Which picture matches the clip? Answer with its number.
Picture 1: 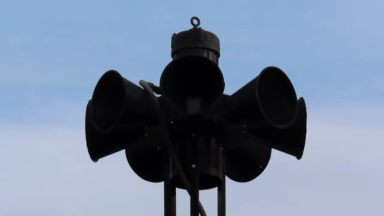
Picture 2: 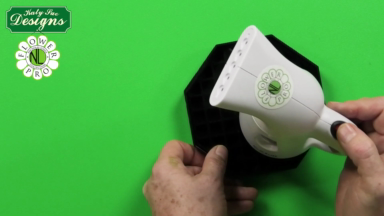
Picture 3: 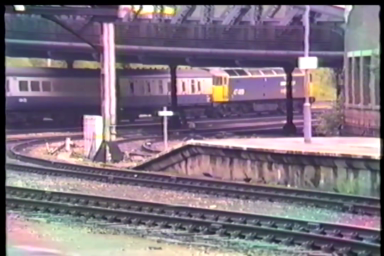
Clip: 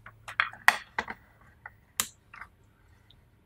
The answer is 2